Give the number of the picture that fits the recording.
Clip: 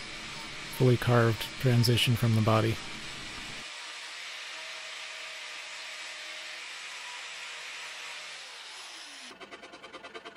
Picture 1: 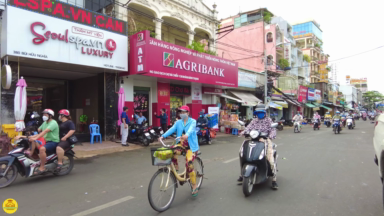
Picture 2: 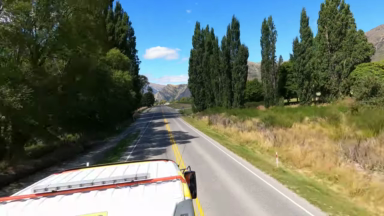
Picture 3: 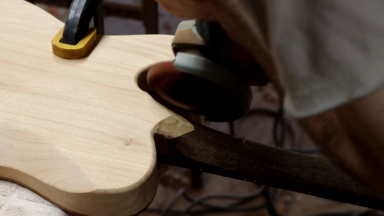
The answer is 3